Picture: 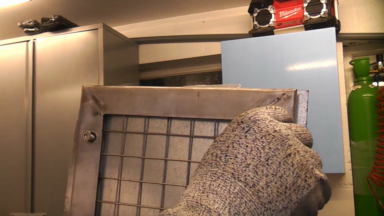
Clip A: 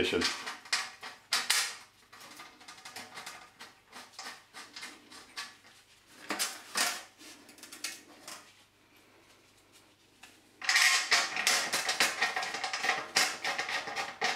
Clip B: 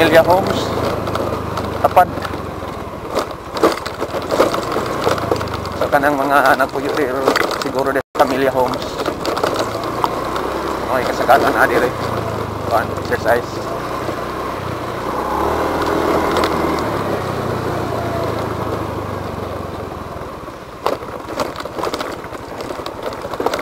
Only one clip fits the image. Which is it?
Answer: A